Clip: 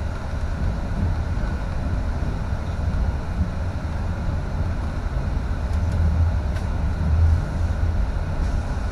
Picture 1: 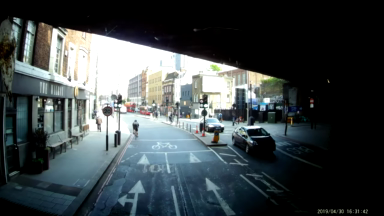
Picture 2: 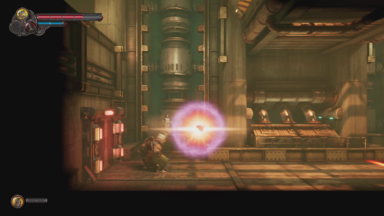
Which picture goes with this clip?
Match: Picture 1